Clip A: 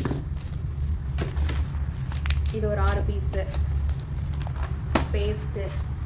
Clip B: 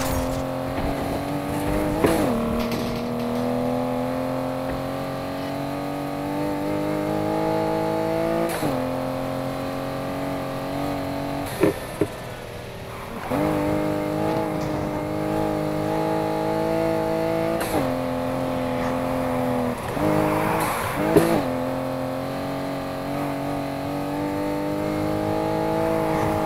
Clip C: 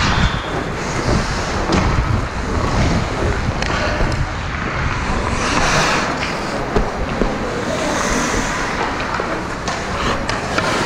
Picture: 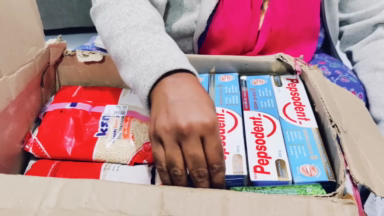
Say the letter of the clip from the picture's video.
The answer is A